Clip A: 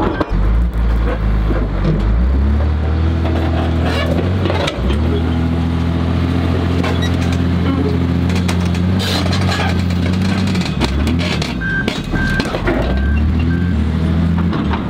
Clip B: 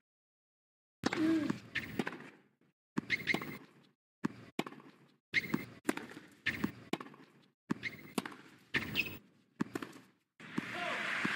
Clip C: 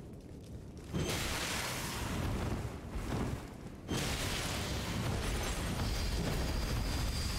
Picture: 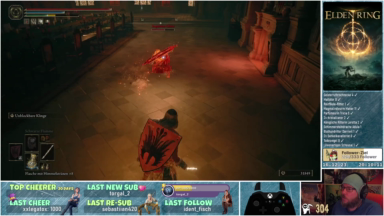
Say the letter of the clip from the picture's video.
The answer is C